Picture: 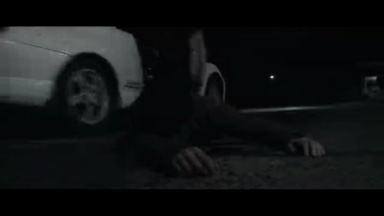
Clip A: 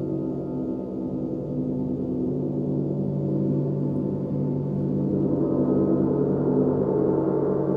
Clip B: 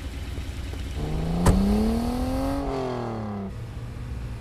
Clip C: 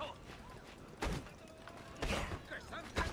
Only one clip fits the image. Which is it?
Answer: B